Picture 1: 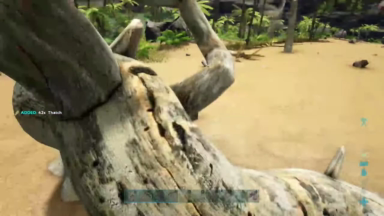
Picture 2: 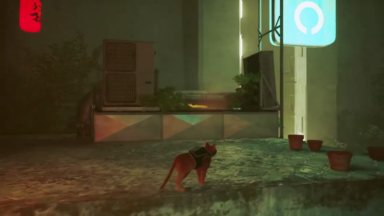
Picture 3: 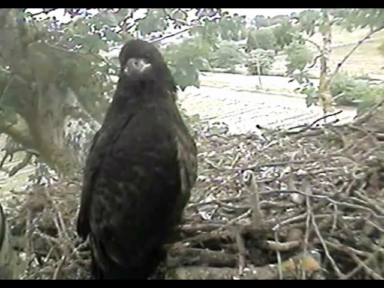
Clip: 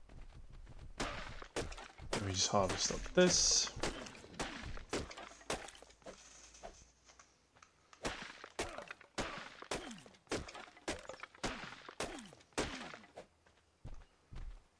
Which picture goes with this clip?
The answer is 1